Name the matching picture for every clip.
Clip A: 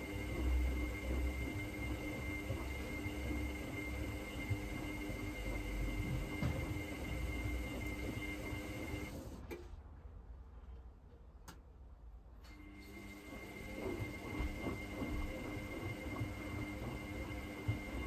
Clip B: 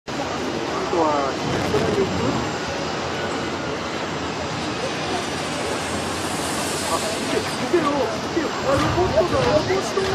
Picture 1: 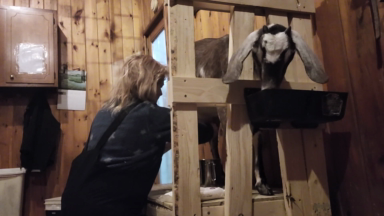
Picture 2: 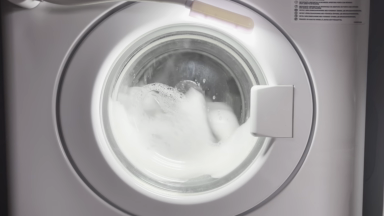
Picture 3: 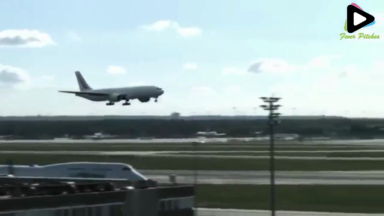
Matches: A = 2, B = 3